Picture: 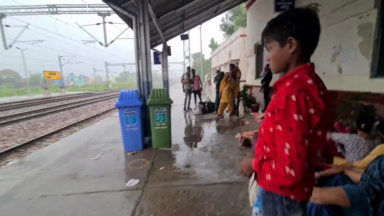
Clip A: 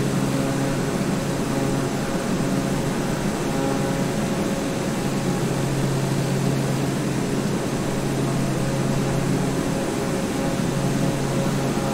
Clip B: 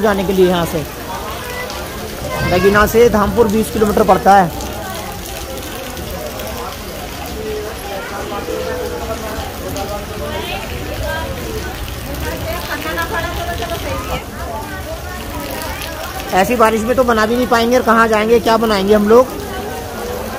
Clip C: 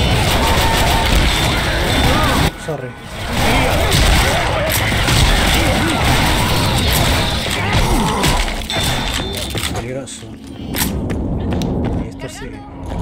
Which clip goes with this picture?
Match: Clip B